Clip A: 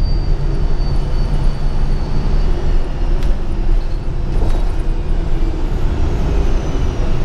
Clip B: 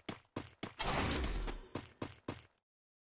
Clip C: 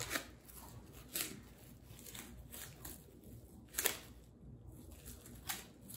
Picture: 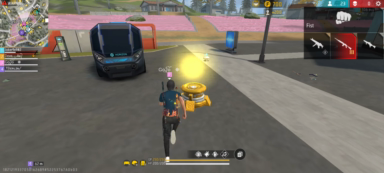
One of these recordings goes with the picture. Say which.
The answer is B